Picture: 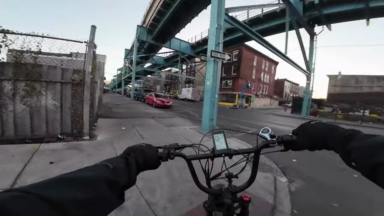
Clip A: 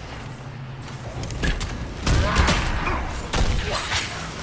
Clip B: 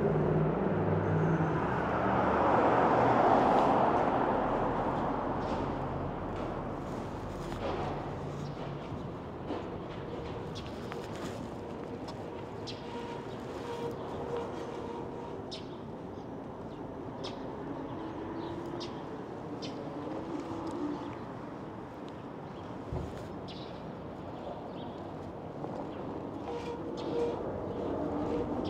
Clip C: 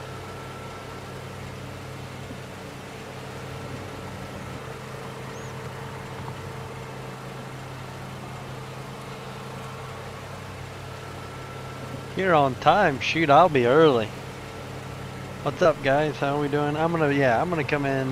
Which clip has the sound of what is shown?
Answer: B